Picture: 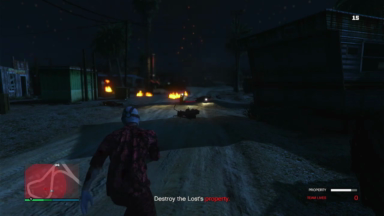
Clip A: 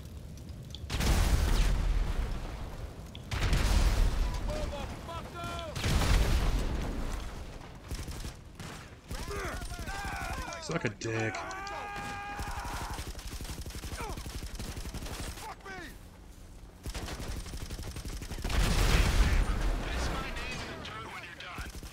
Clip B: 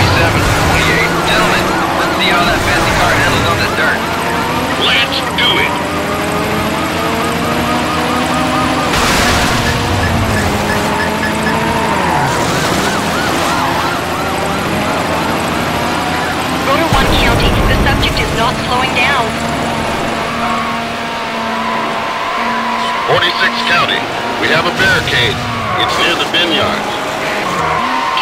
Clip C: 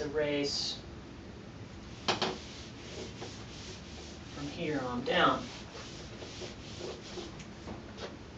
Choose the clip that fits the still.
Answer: A